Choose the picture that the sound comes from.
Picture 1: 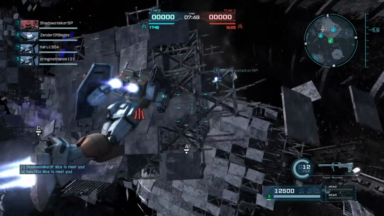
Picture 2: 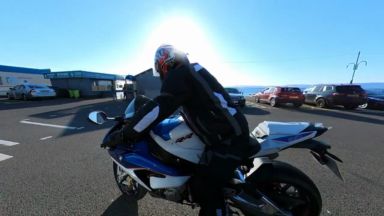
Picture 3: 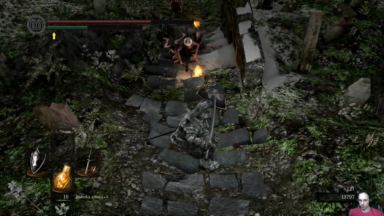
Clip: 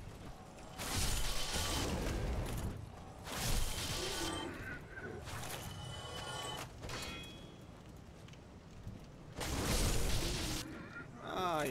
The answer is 3